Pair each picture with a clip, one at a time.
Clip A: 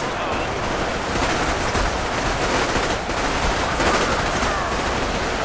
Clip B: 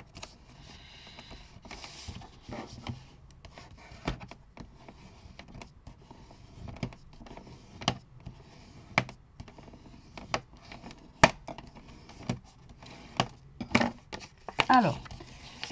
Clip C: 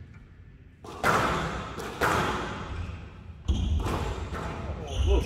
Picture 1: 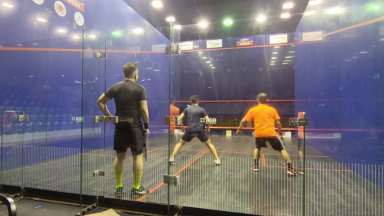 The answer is C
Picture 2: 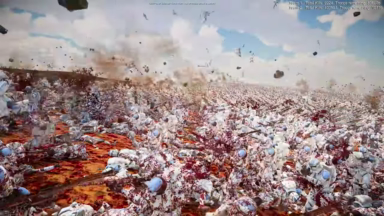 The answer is A